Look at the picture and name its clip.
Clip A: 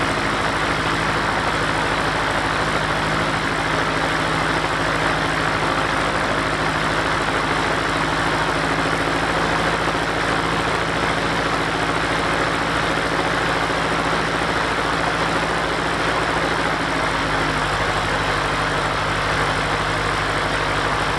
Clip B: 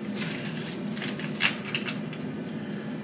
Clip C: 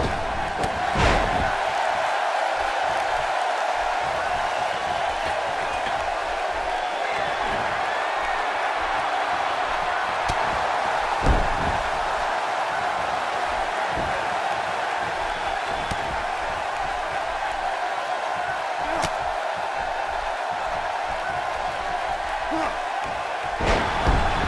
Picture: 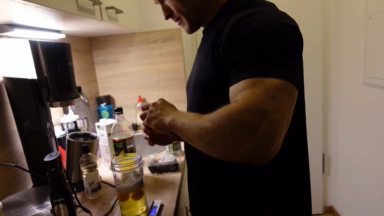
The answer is B